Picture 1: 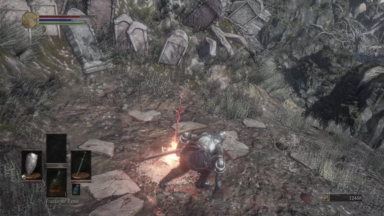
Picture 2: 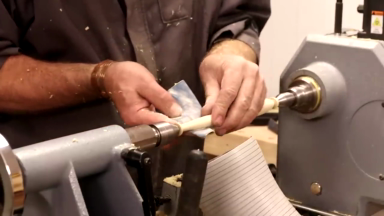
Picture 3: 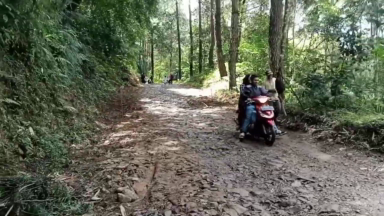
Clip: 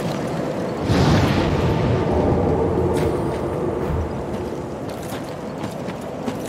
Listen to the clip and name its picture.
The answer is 1